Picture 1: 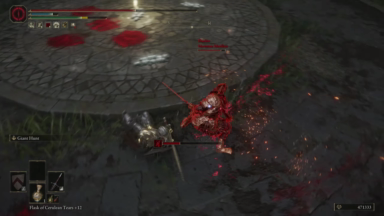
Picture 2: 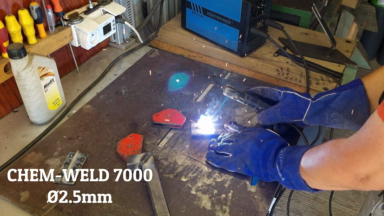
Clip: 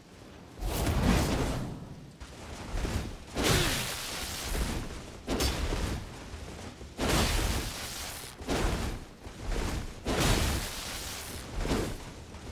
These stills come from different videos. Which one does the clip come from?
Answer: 1